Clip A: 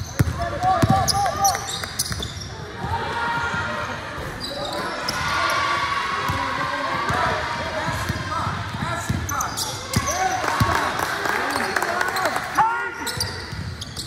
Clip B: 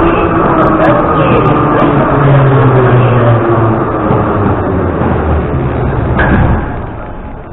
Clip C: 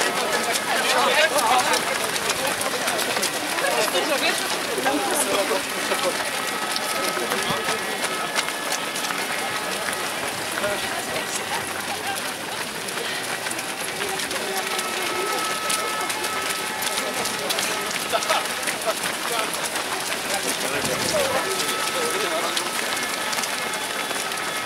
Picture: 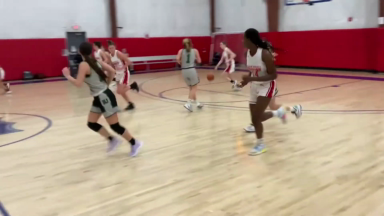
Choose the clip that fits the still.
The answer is A